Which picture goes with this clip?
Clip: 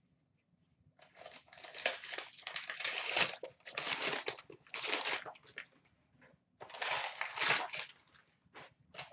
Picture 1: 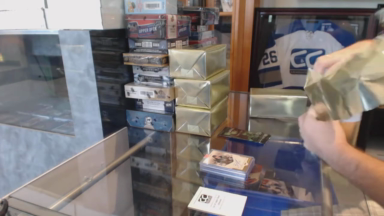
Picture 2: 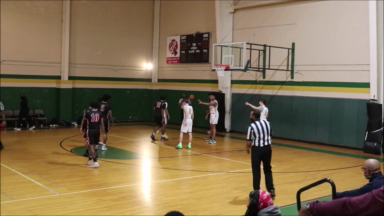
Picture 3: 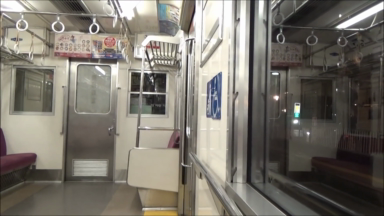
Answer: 1